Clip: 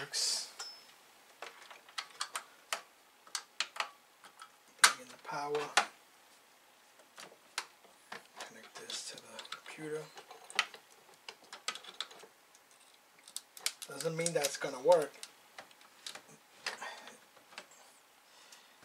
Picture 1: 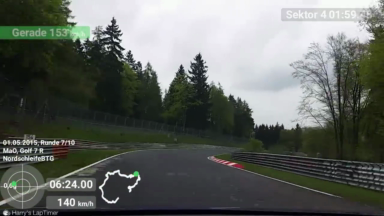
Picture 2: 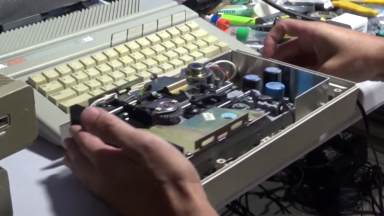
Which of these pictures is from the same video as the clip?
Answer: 2